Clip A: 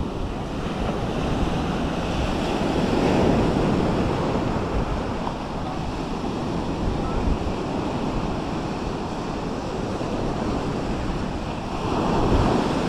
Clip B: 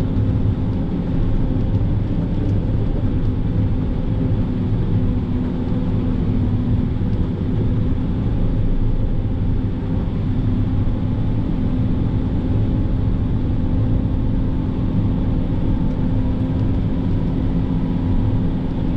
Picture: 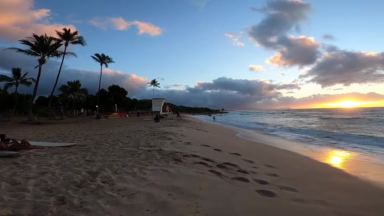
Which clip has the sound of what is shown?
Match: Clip A